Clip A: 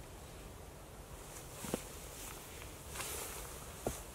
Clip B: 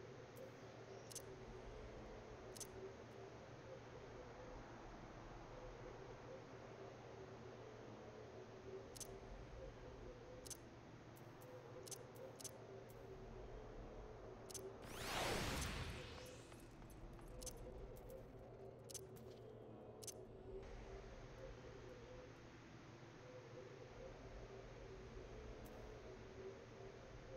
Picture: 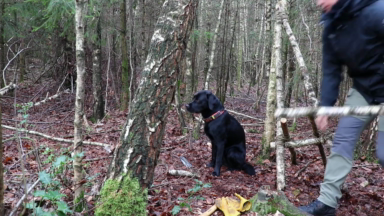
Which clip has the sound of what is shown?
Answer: A